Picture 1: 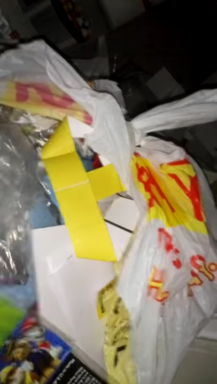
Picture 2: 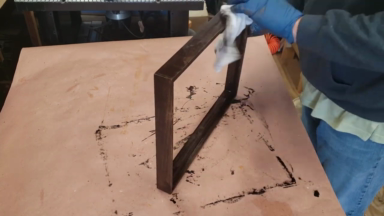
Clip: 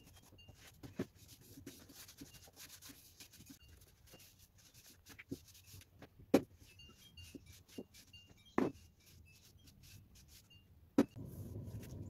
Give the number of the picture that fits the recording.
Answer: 2